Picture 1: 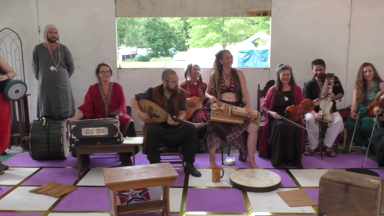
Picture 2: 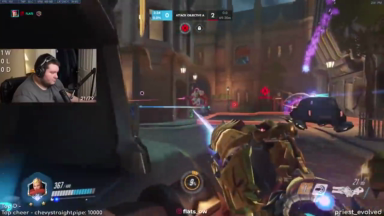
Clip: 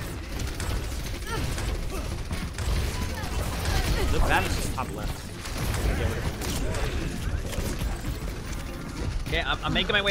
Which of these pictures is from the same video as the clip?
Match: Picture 2